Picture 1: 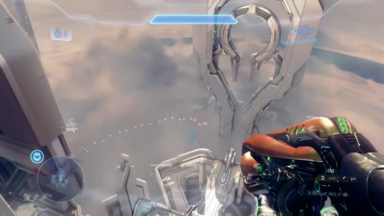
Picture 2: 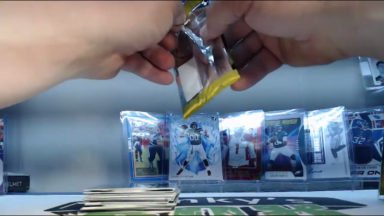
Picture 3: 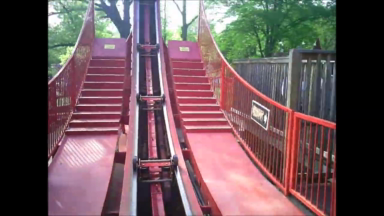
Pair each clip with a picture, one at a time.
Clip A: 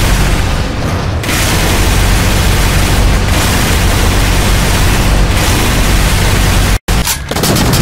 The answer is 1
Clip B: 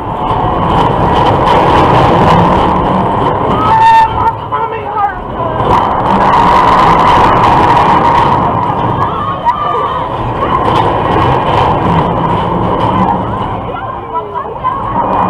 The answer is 3